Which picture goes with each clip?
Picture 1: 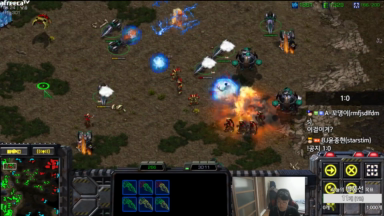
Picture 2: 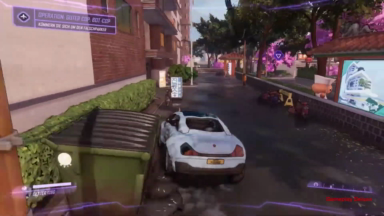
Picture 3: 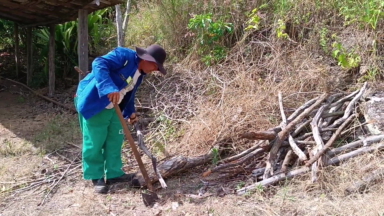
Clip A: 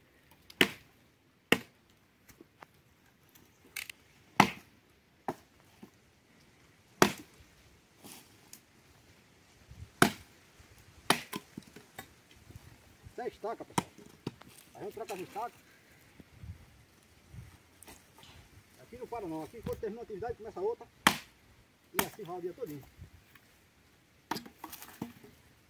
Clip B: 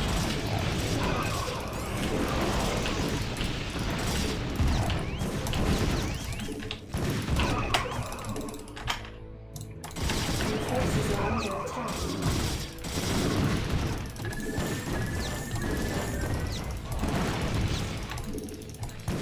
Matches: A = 3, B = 1